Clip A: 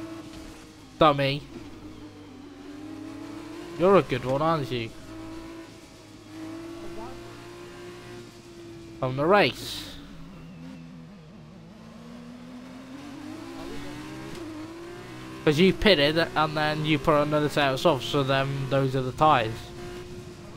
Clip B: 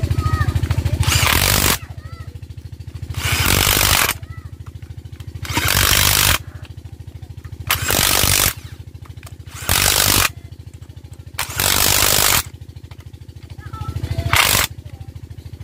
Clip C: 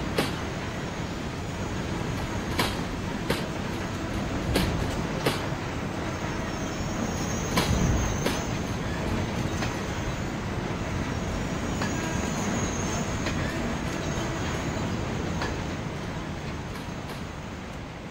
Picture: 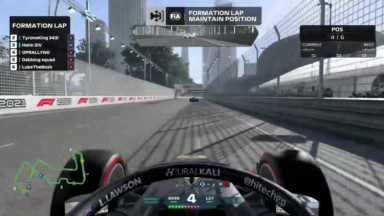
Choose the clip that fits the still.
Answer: A